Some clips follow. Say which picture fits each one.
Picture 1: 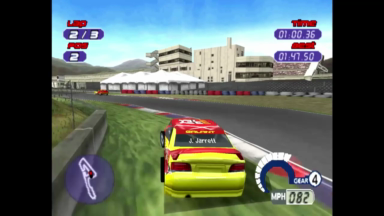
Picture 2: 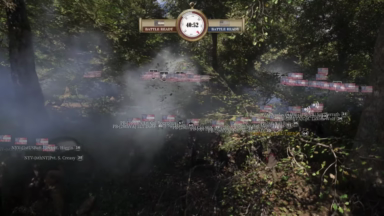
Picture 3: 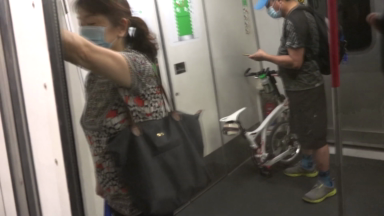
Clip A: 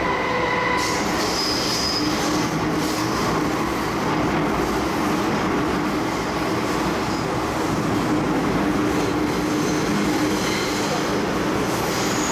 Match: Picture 3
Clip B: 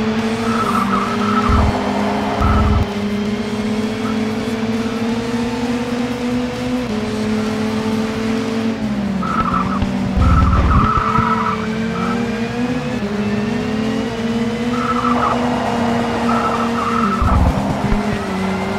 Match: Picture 1